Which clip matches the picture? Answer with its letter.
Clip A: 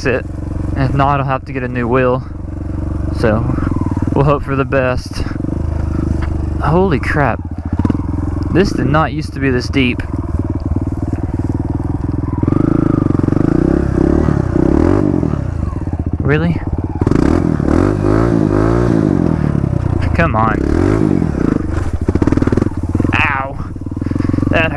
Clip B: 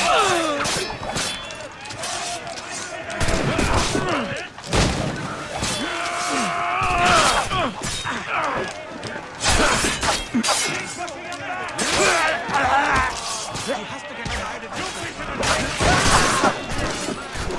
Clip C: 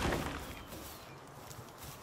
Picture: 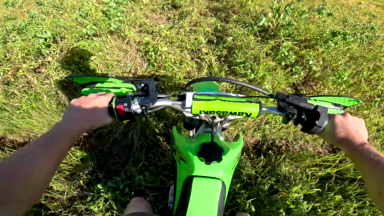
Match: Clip A